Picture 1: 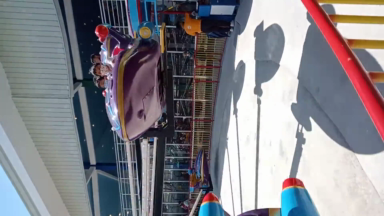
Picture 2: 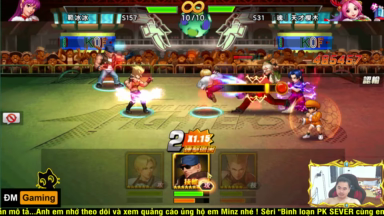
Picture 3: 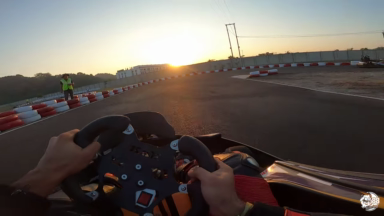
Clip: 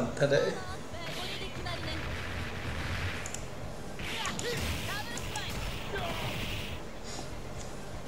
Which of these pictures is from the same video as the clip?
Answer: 2